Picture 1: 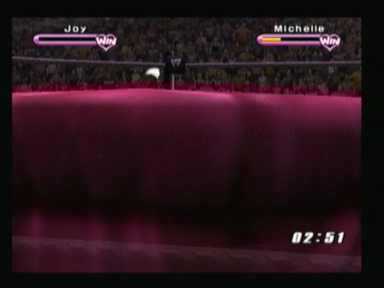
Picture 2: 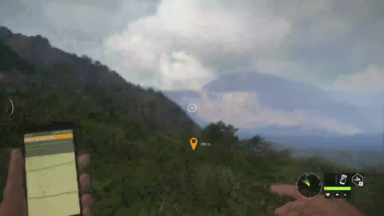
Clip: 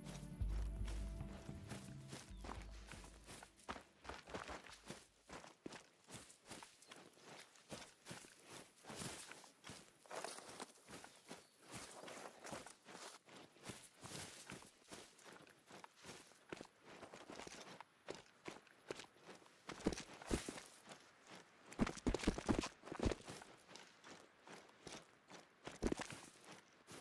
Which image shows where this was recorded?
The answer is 2